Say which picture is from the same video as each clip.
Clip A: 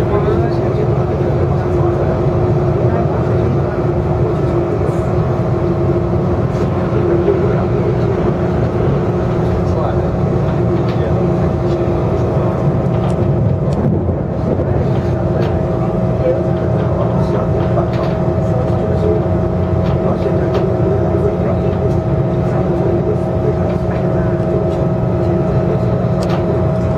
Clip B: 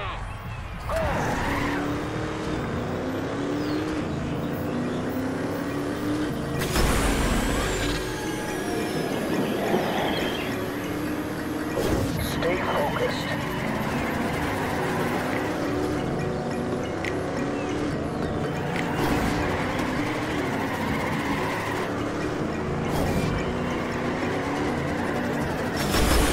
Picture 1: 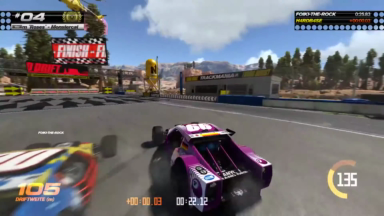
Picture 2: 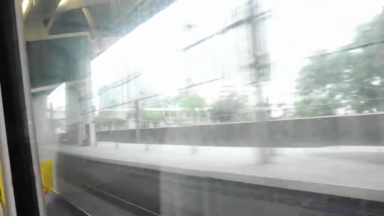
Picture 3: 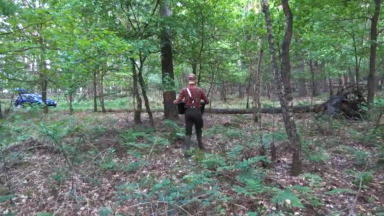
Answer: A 2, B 1